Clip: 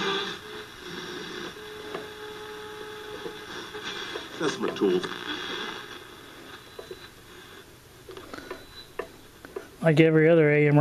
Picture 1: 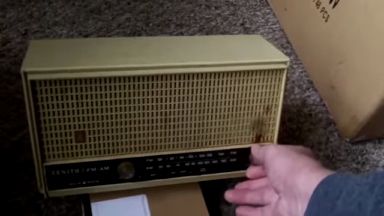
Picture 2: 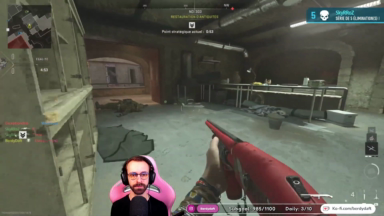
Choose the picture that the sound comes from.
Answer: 1